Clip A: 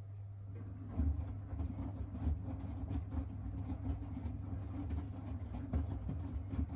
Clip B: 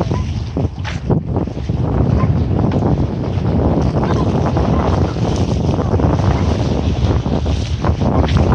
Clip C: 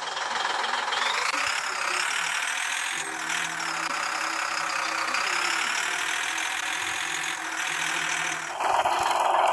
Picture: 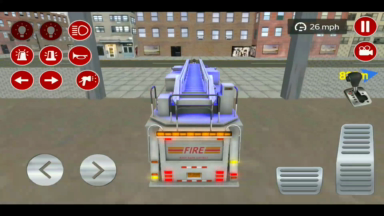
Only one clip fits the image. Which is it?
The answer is C